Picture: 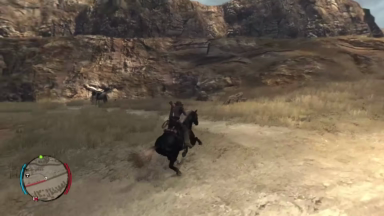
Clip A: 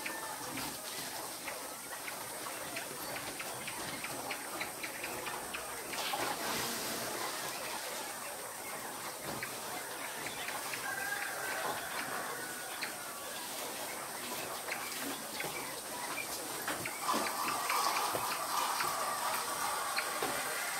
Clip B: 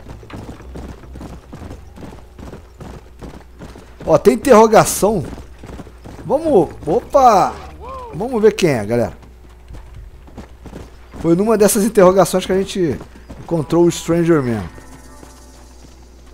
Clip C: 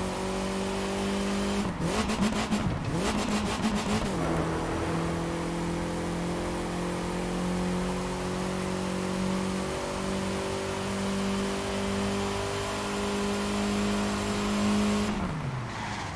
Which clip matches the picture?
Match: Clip B